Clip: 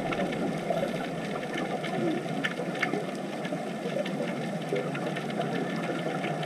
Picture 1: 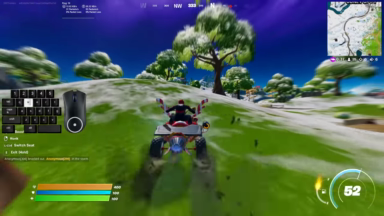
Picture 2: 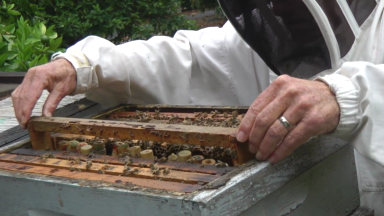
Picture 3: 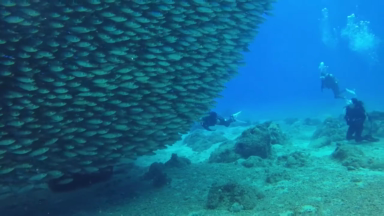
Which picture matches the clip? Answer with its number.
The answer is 3